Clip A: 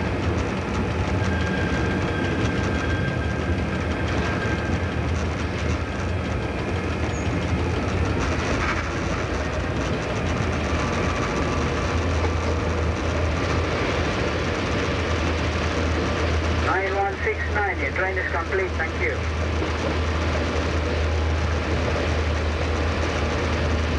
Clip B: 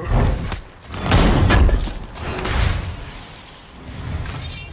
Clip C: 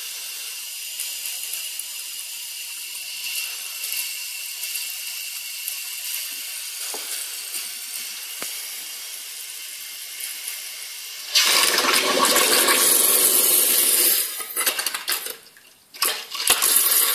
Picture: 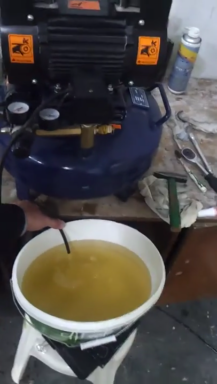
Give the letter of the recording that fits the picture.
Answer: C